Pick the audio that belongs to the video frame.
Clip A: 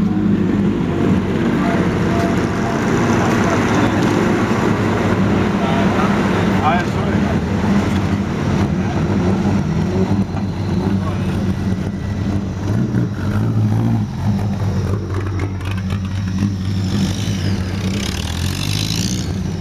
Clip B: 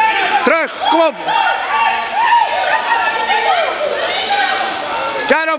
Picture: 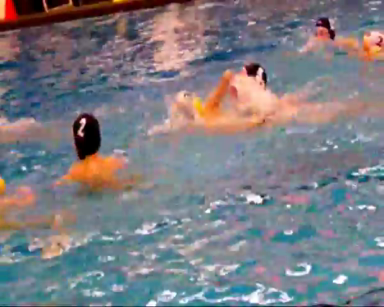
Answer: B